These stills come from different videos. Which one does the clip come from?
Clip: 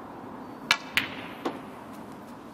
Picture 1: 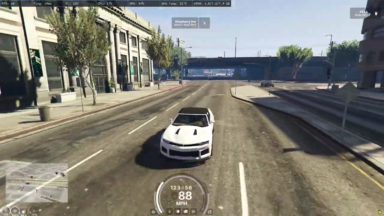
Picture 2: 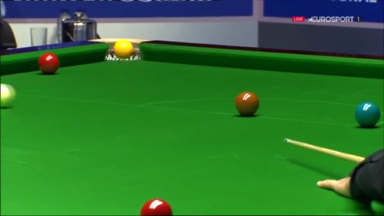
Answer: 2